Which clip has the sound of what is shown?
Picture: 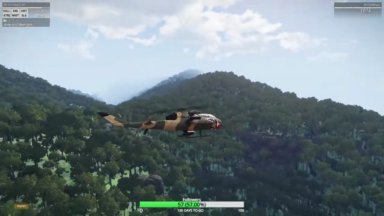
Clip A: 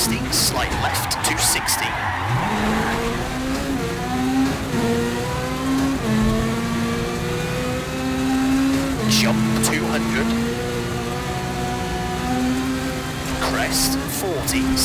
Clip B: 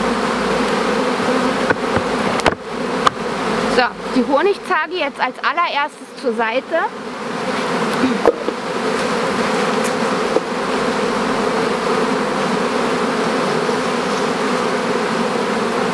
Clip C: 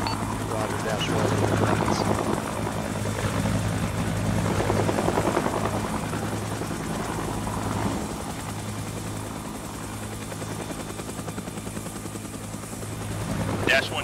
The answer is C